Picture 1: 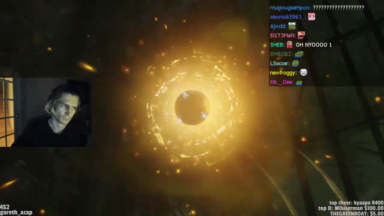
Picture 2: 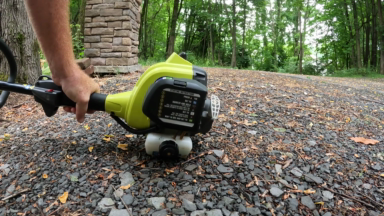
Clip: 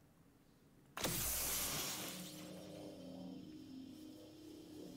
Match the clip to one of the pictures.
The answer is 1